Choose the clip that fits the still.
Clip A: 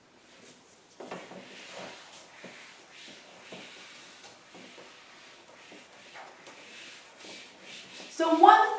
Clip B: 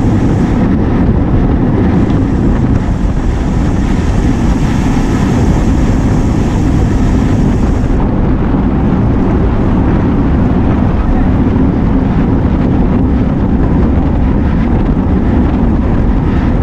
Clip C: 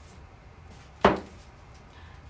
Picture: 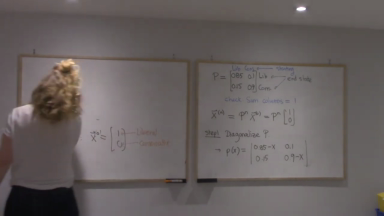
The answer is A